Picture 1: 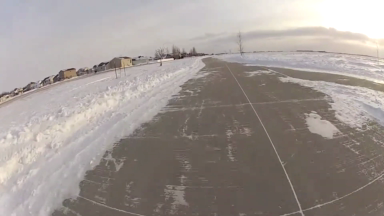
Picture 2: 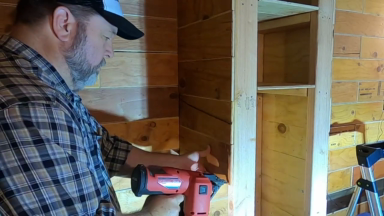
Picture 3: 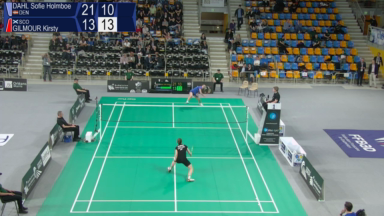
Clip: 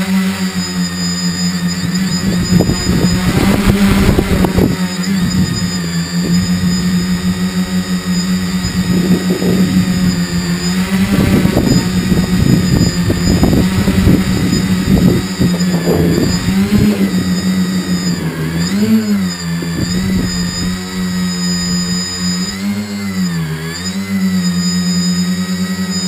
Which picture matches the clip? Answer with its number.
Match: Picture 1